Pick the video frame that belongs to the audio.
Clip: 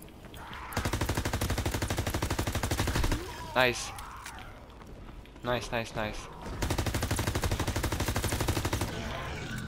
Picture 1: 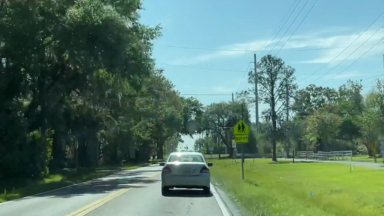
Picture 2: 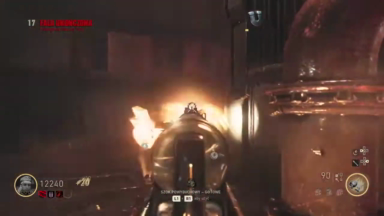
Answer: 2